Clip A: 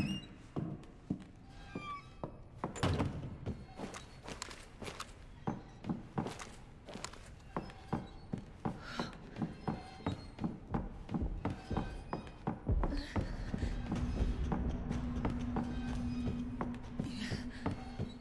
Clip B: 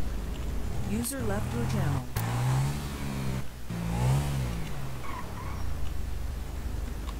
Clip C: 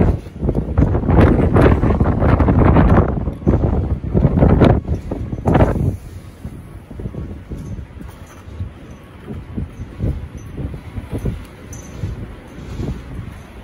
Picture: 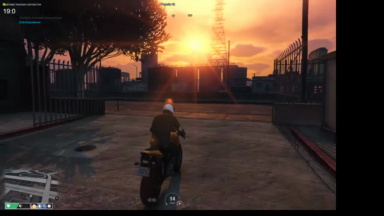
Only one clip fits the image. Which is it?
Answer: B